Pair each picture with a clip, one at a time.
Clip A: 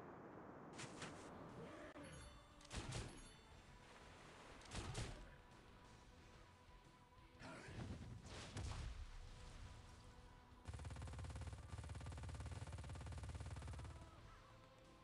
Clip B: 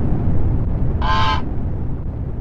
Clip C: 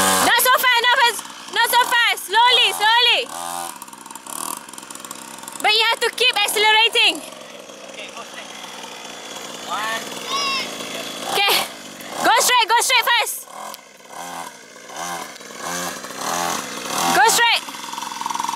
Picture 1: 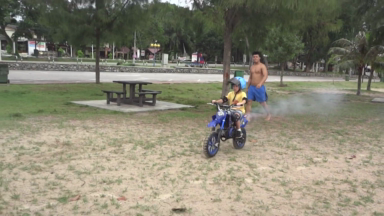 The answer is C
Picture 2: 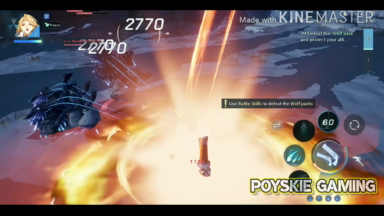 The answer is A